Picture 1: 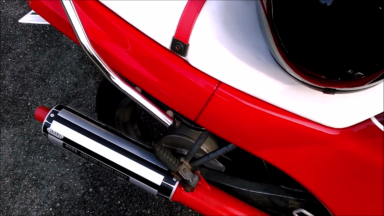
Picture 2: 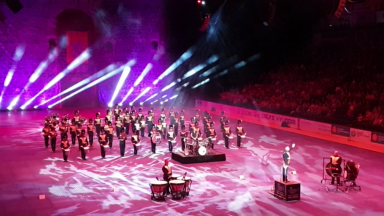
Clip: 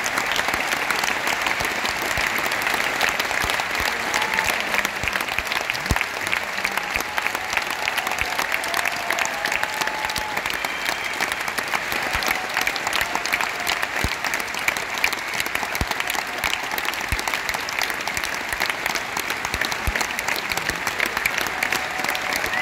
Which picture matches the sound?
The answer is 2